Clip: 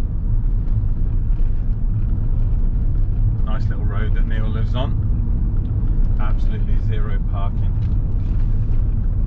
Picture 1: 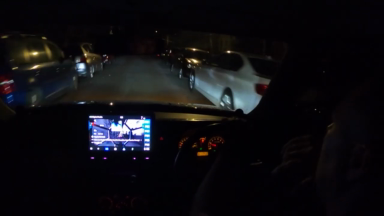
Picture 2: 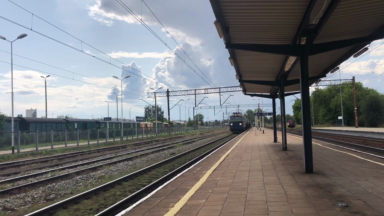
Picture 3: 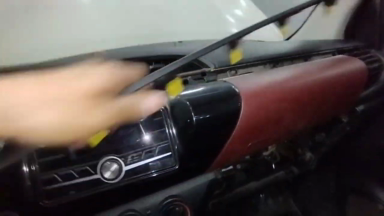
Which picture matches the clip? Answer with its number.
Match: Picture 1